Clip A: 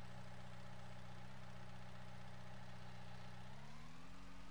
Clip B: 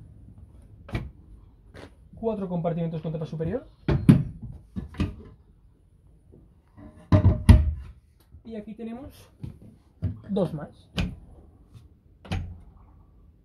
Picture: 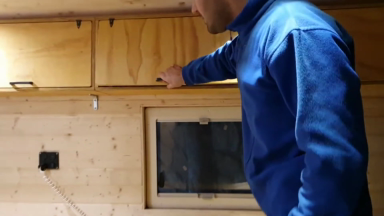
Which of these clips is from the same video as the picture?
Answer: B